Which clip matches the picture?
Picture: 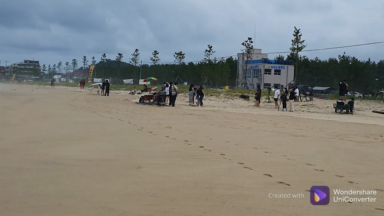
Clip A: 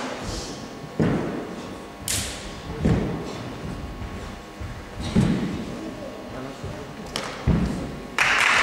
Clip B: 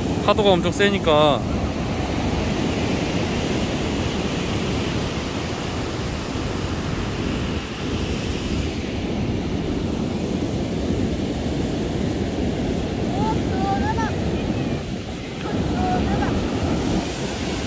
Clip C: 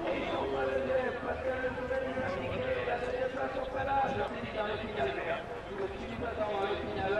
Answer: B